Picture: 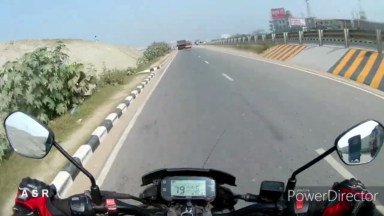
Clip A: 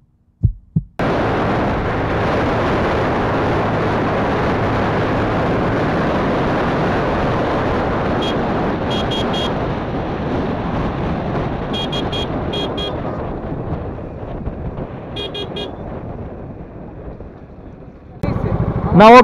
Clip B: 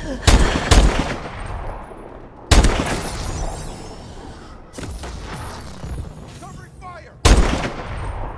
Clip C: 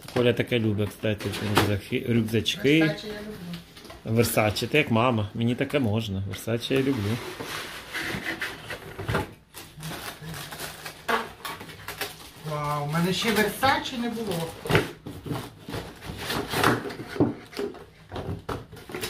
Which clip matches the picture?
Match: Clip A